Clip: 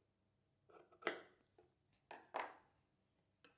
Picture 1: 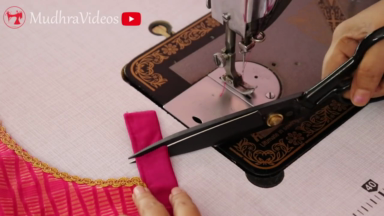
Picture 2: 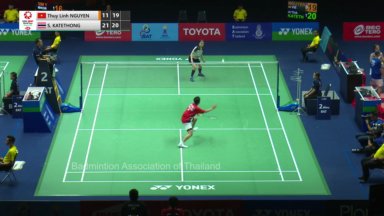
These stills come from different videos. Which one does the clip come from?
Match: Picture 1